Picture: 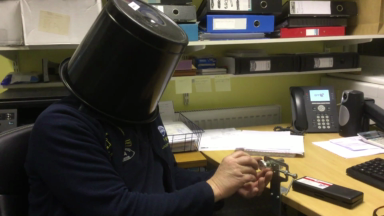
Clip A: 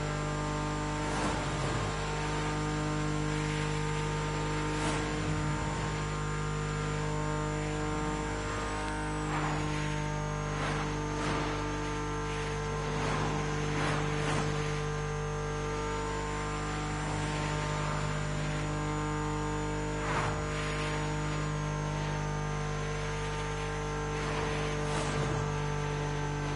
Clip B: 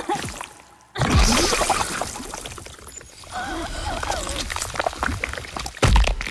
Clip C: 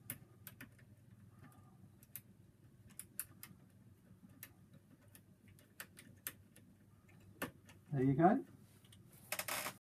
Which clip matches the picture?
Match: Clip C